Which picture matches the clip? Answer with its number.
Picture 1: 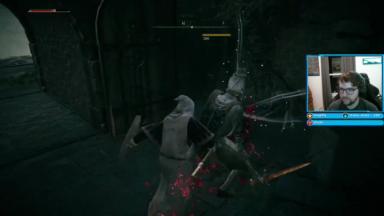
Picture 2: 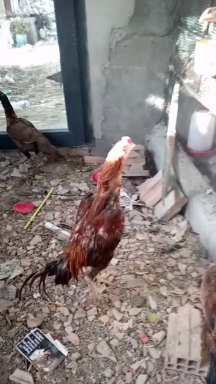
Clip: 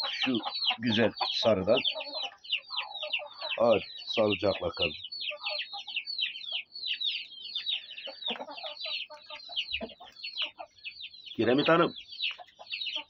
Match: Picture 2